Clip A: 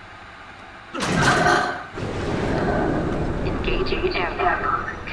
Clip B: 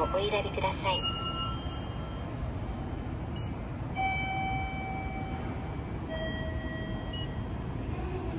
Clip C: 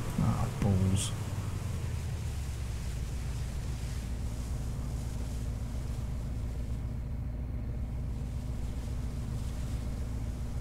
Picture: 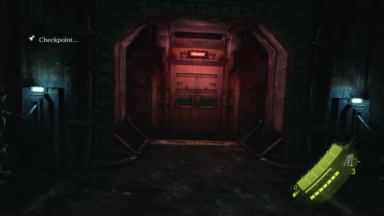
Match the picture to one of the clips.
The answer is A